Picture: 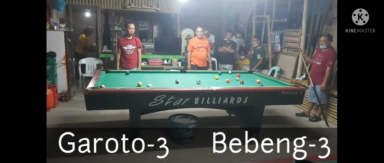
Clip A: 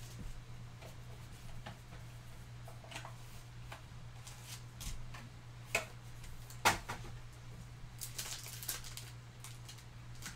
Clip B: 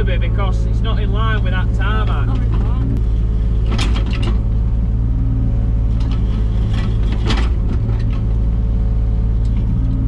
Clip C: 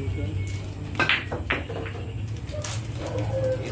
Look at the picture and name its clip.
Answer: C